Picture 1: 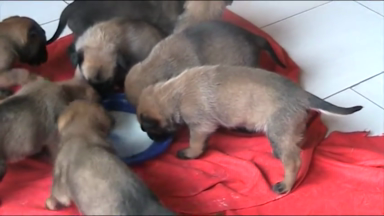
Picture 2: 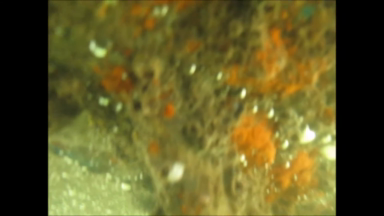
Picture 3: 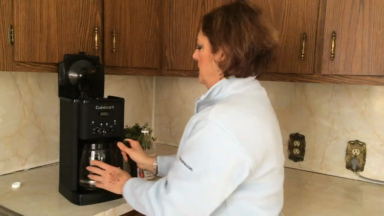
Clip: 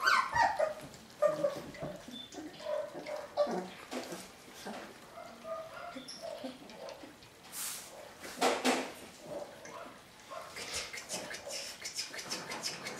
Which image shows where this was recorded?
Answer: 1